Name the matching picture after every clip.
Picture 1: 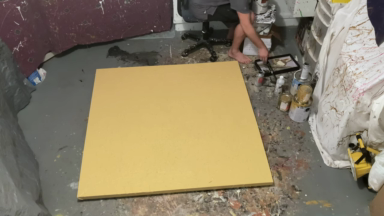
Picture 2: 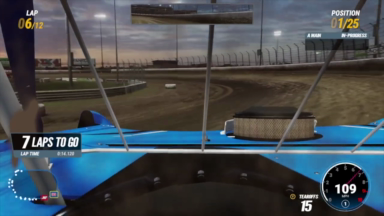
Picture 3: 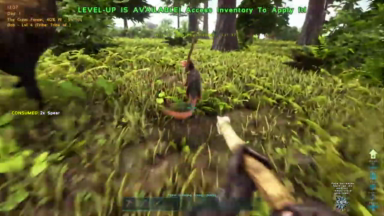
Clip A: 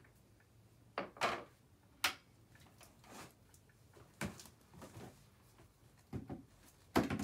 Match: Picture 1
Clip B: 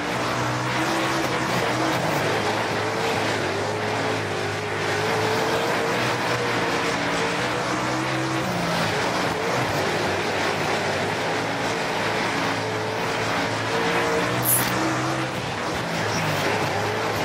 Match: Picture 2